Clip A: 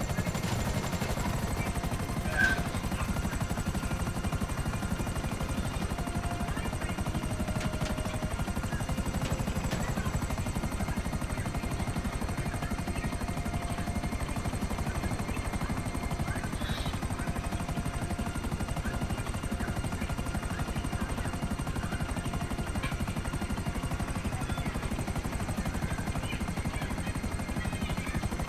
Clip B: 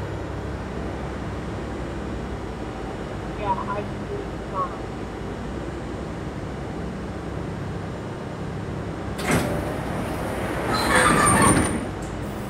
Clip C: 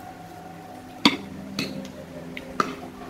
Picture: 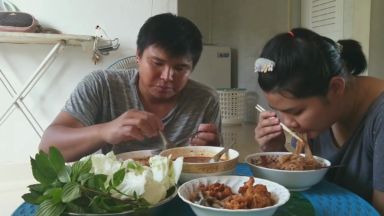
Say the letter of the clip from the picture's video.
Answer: C